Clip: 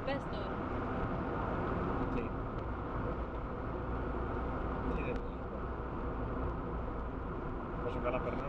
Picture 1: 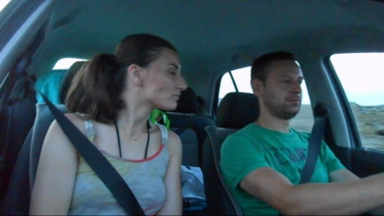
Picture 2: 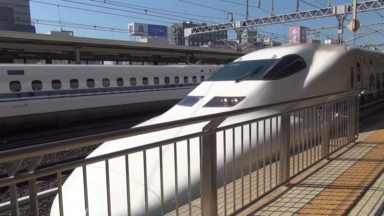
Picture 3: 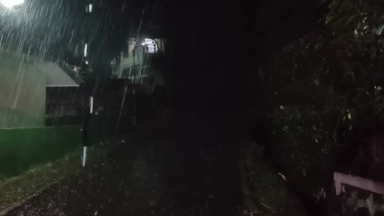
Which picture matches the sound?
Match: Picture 1